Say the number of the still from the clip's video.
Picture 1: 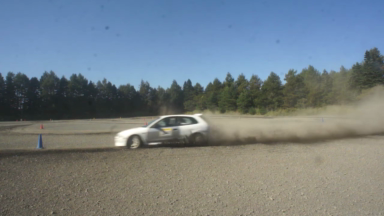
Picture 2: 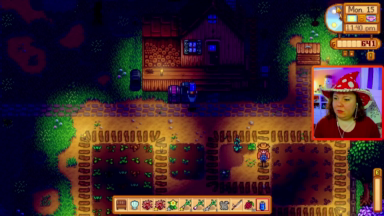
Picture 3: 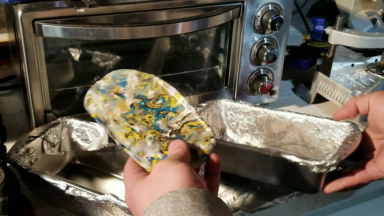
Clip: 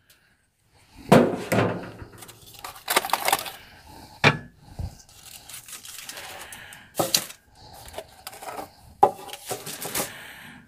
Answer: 3